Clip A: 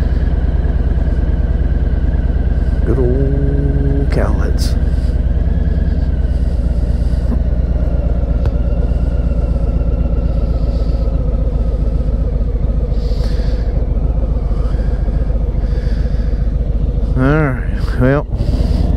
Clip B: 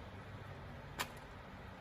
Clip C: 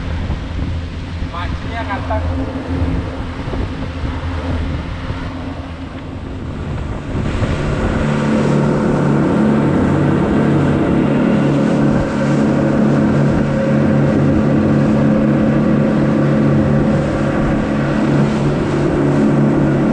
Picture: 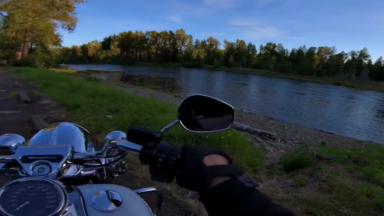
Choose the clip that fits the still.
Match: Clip A